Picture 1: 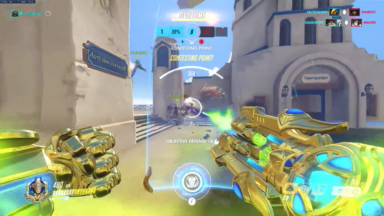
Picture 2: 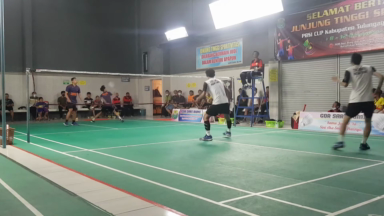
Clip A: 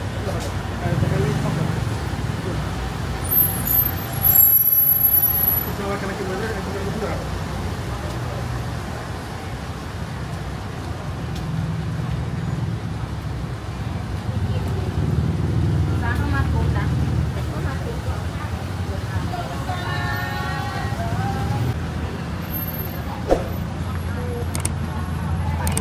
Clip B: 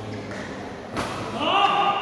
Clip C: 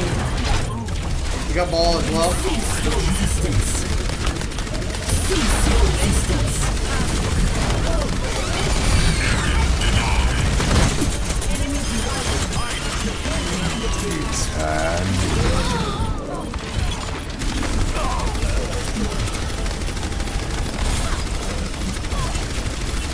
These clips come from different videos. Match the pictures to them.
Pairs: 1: C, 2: B